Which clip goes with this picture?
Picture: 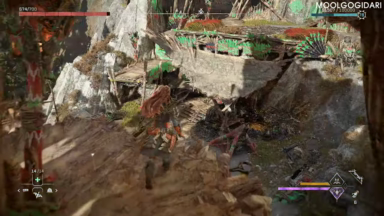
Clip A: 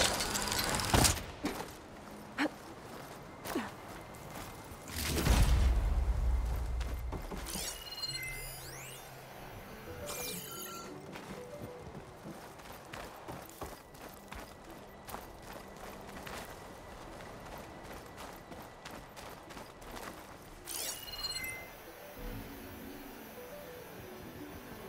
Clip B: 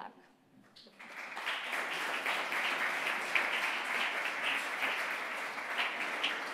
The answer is A